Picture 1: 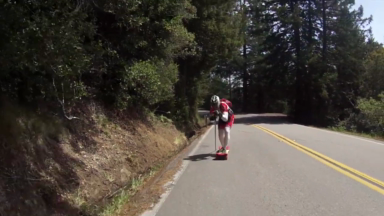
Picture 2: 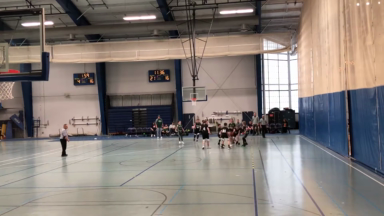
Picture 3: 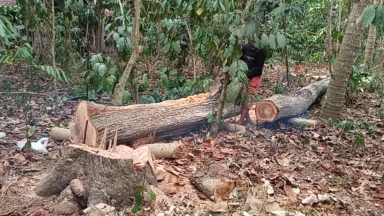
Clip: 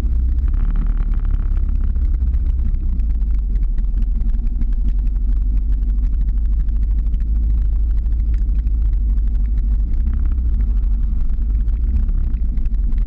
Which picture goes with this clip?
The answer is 1